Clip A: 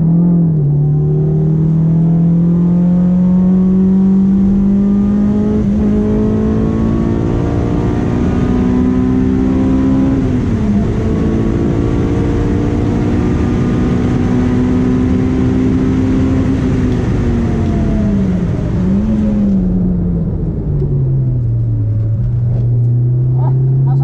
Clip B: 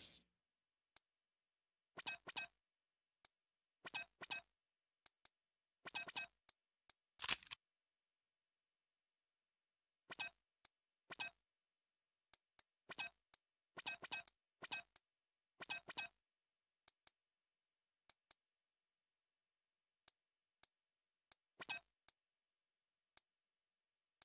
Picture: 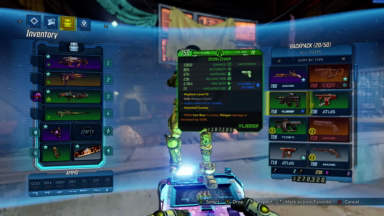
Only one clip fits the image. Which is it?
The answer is B